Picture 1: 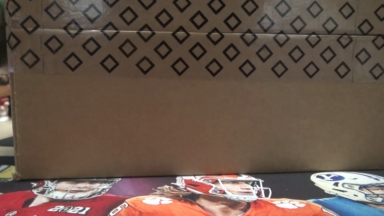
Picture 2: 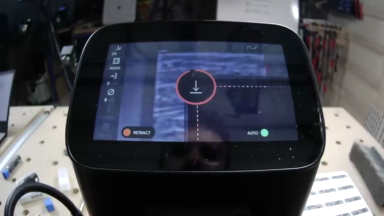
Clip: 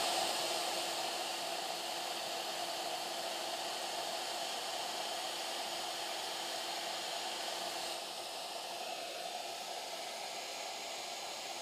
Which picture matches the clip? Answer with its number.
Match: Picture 2